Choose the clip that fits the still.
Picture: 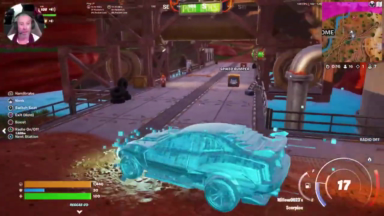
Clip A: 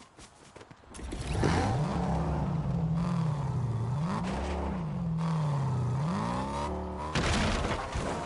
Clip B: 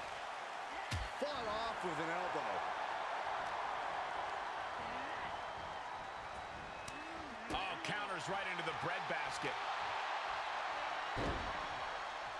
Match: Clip A